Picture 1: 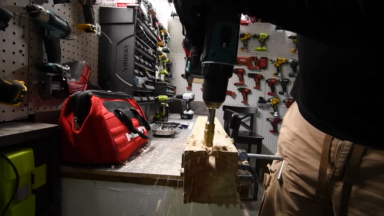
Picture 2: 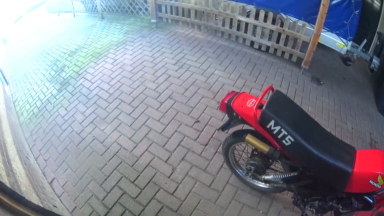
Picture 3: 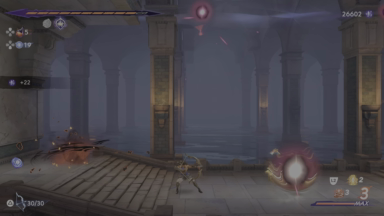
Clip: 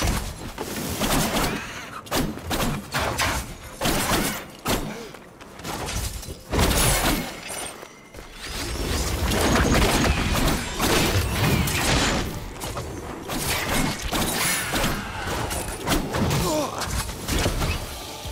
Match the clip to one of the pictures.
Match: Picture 3